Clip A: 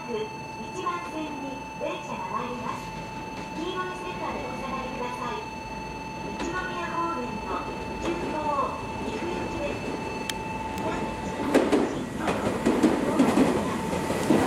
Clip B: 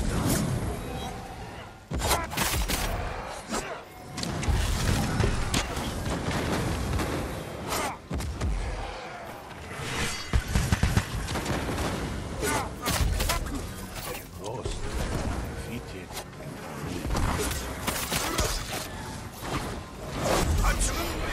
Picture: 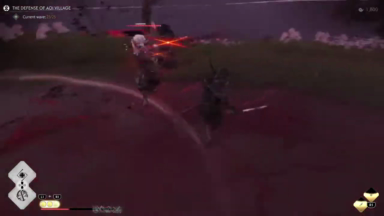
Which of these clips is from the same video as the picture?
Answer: B